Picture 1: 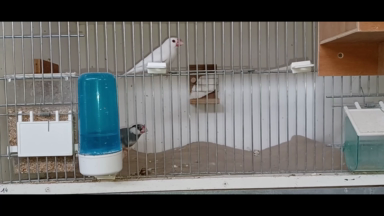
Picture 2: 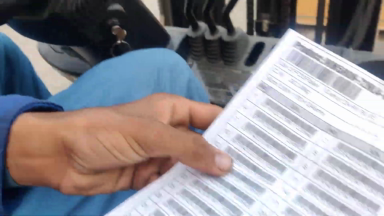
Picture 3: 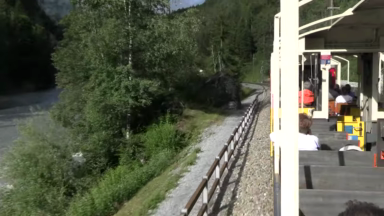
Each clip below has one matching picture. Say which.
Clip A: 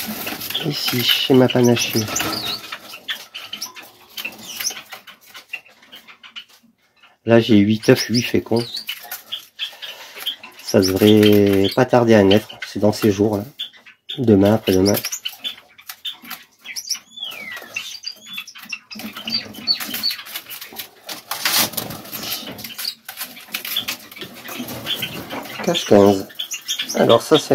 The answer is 1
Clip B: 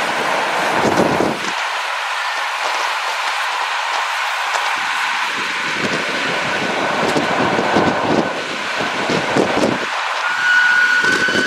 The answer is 3